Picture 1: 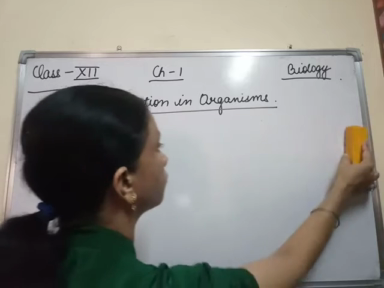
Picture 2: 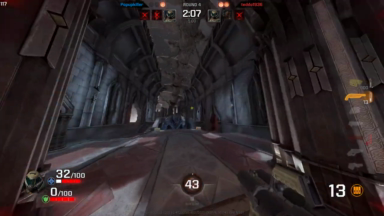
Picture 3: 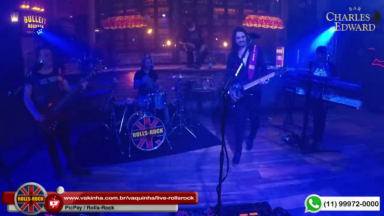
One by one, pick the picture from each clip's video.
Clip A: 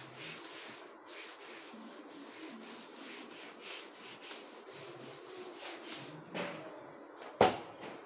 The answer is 1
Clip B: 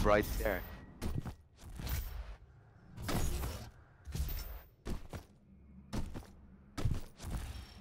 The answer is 2